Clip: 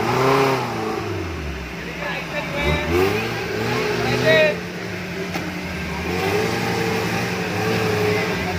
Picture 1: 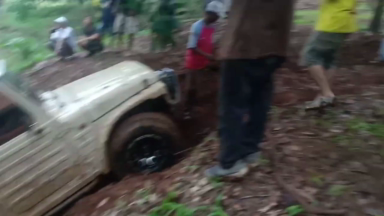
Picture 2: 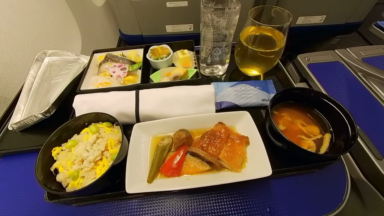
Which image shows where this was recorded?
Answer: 1